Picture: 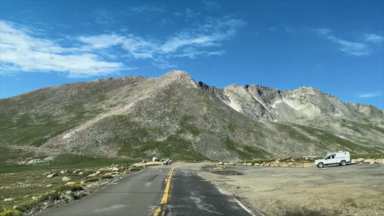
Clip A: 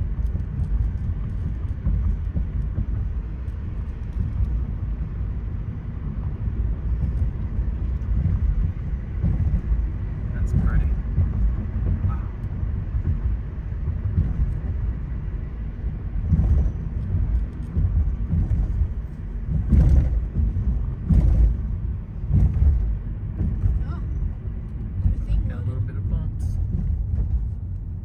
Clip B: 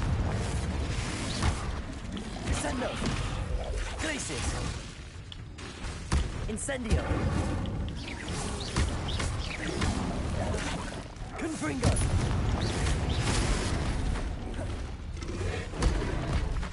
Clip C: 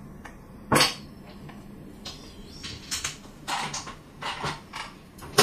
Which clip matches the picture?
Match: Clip A